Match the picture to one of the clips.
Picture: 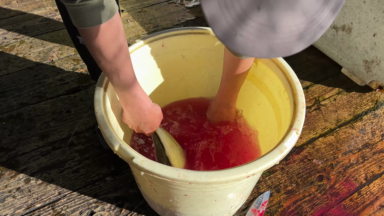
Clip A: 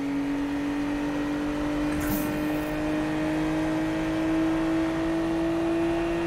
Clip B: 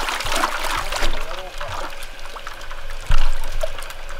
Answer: B